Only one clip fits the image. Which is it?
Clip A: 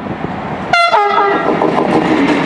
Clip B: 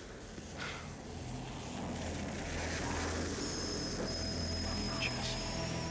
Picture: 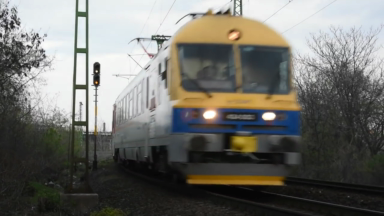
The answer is A